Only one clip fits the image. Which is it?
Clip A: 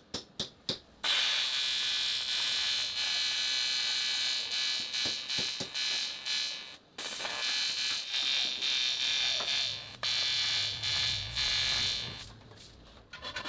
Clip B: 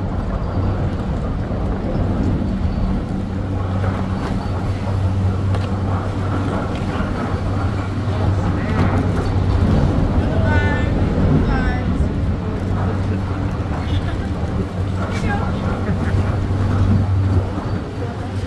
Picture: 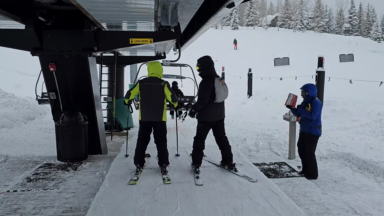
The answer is B